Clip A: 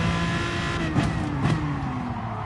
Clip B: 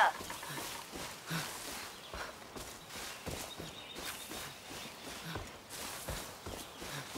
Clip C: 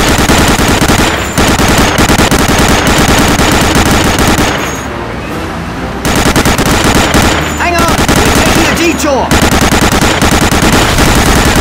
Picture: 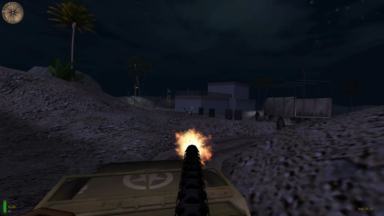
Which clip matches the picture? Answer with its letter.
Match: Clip C